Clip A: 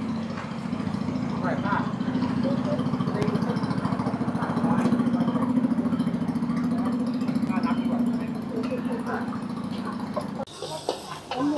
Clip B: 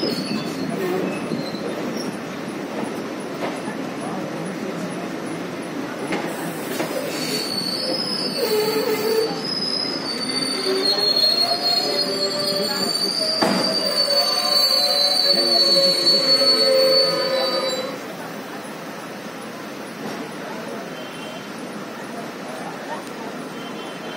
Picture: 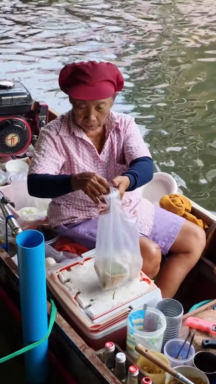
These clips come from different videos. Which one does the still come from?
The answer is A